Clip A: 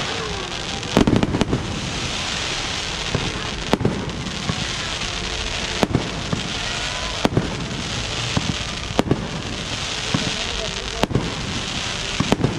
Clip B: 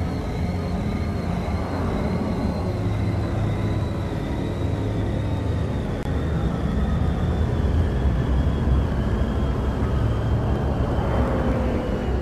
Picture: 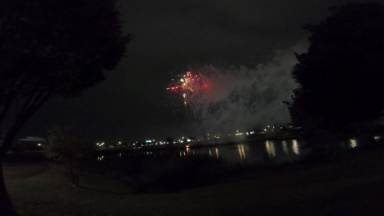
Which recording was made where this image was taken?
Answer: A